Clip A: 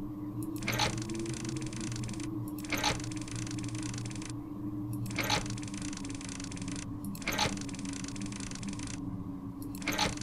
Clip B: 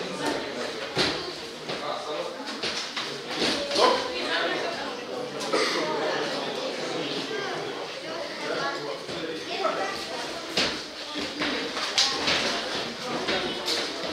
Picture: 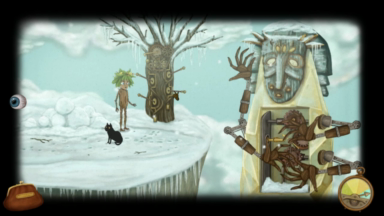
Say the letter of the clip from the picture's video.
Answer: A